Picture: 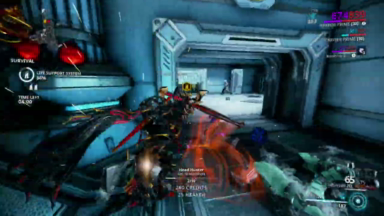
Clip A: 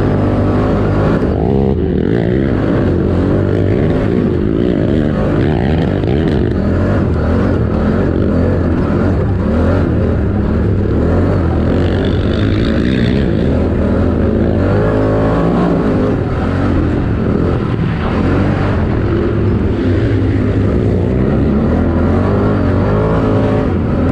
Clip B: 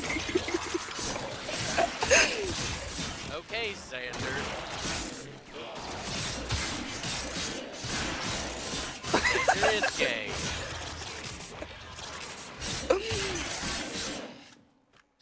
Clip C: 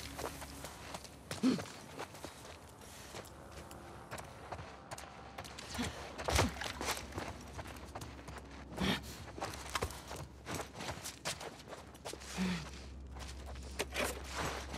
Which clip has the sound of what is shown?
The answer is B